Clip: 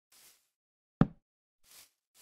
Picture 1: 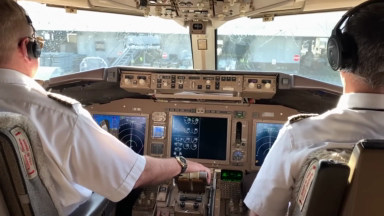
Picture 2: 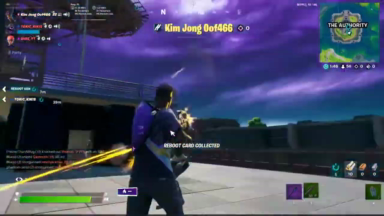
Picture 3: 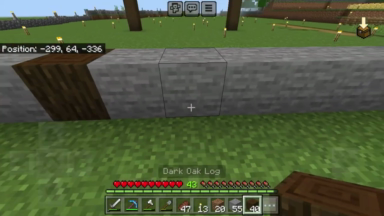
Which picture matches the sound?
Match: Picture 3